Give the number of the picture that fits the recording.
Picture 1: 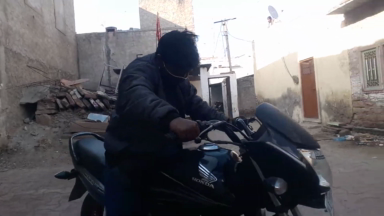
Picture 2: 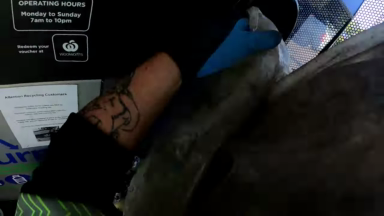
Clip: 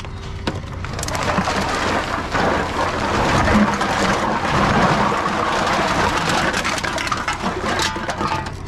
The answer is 2